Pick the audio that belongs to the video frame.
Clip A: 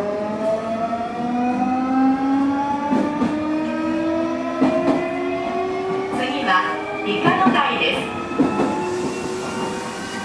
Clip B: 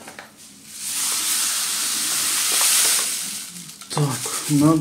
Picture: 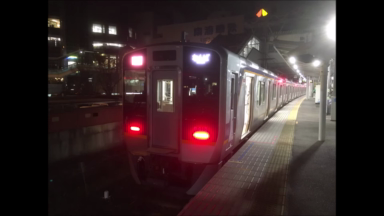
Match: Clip A